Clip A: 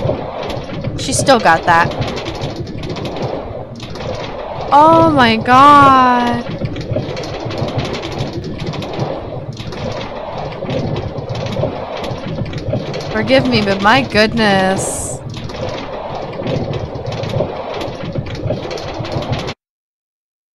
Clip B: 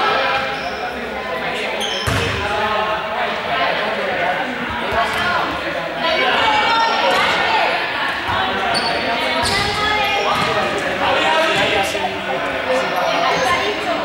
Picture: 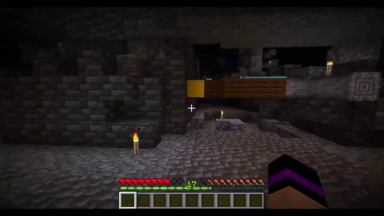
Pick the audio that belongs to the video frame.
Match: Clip A